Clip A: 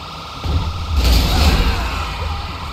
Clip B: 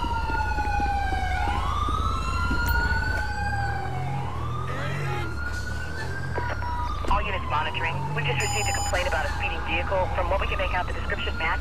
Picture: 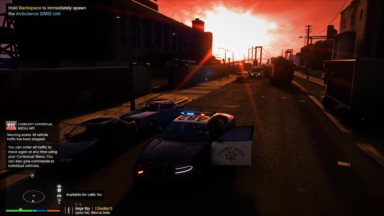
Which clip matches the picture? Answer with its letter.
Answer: B